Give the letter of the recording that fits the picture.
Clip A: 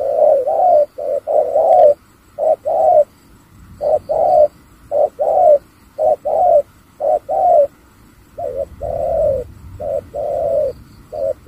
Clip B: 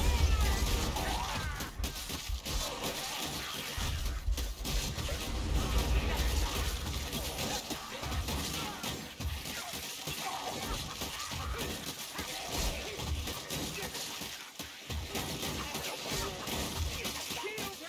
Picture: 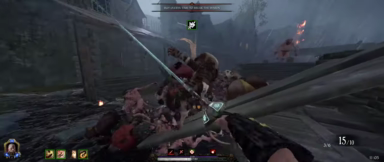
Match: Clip B